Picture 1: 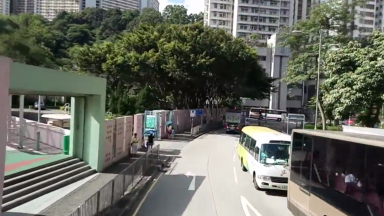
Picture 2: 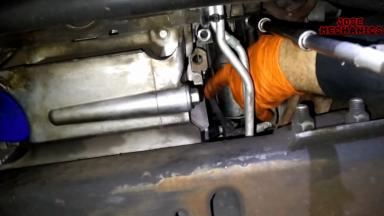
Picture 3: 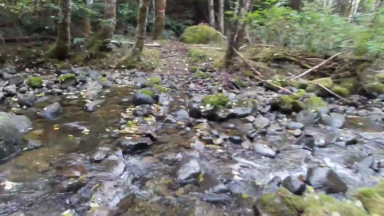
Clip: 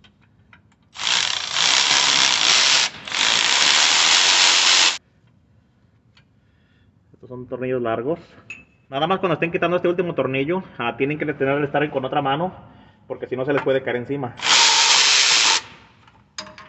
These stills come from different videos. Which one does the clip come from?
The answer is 2